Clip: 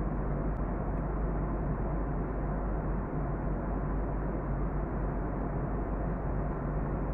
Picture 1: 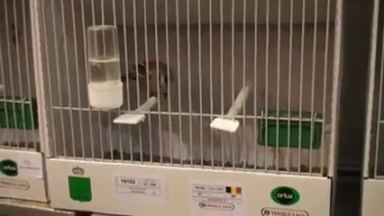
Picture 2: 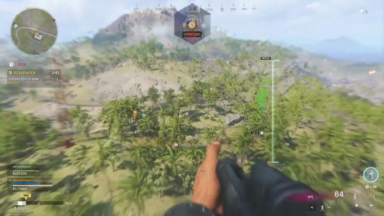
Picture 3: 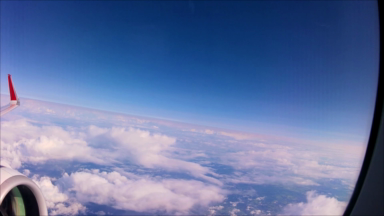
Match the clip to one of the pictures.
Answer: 3